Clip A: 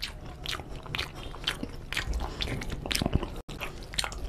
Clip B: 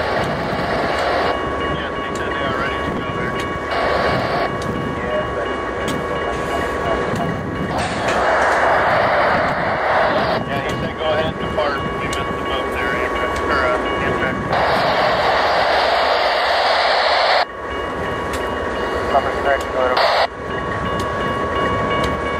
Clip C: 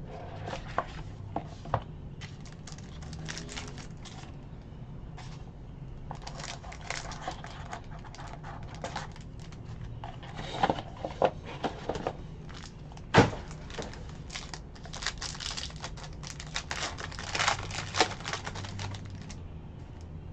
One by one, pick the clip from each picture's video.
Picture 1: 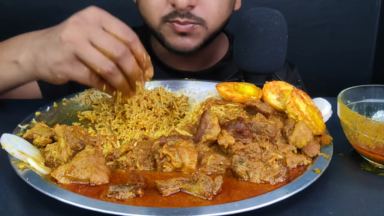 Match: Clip A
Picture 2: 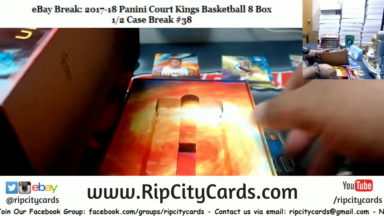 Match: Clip C